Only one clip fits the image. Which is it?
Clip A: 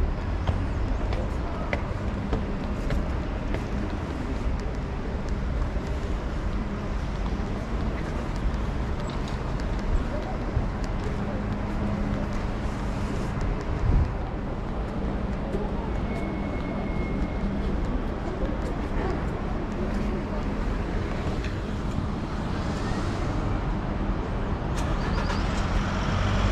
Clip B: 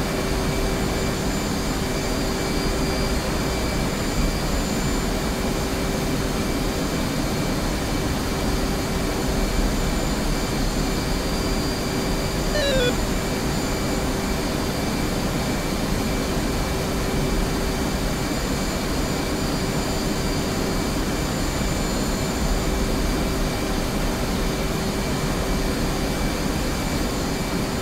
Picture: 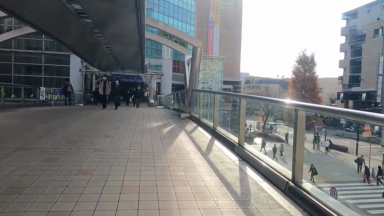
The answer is A